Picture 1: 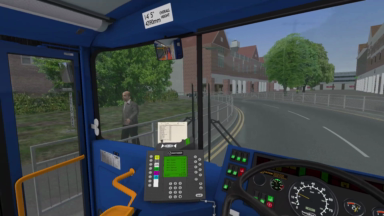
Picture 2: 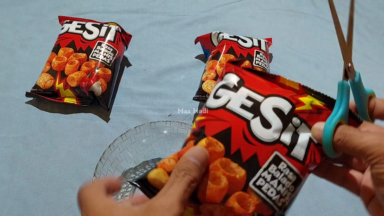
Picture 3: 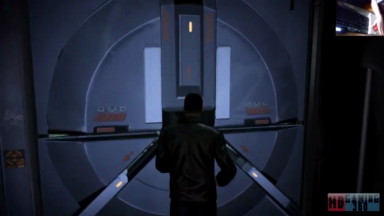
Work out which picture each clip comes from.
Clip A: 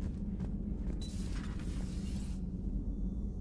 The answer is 3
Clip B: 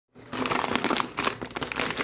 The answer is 2